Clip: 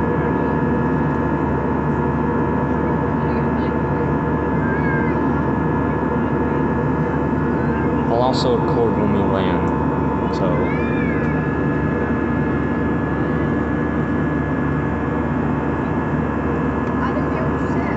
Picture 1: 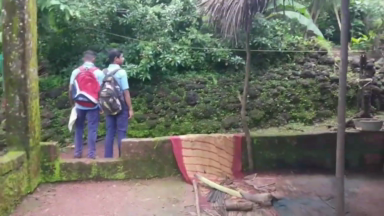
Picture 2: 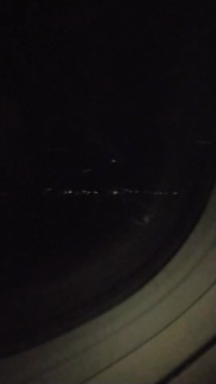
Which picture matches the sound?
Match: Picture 2